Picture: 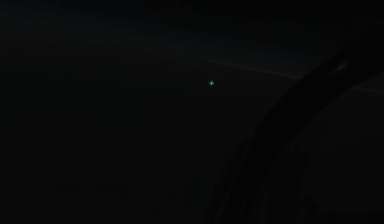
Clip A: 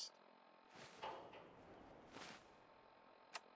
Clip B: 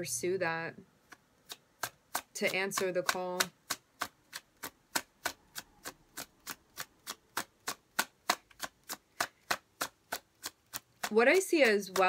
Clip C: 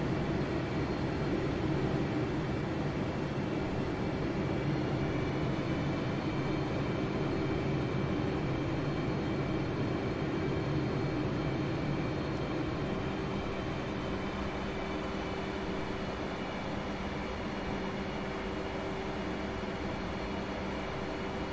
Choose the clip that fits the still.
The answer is C